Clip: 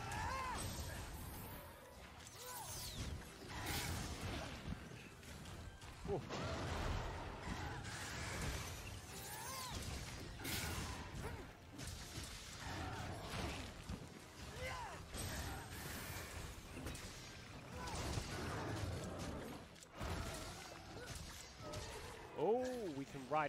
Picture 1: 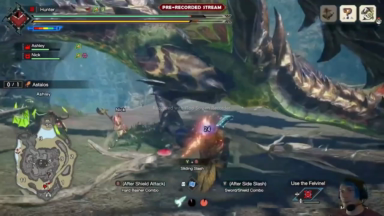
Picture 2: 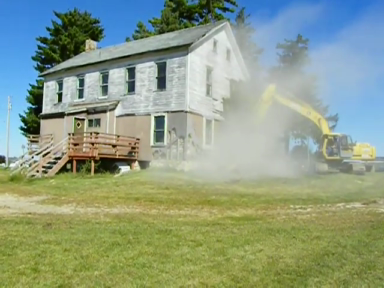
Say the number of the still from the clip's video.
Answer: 1